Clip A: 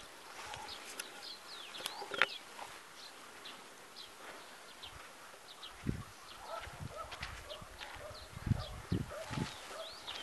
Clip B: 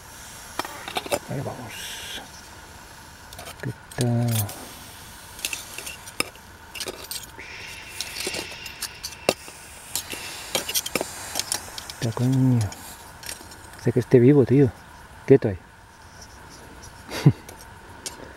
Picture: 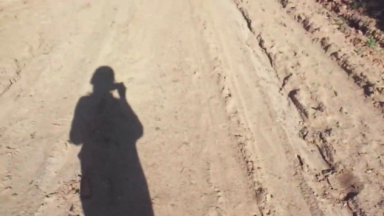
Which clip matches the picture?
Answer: A